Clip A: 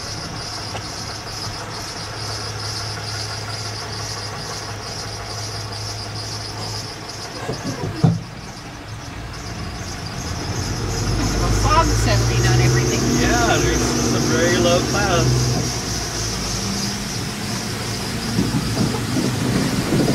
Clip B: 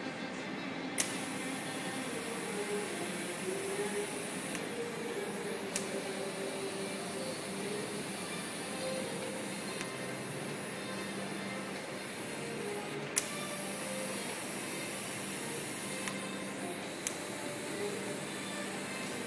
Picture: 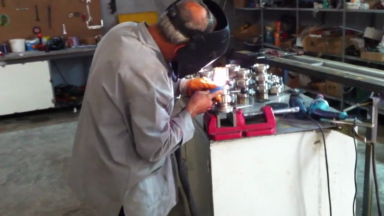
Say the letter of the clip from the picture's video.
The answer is B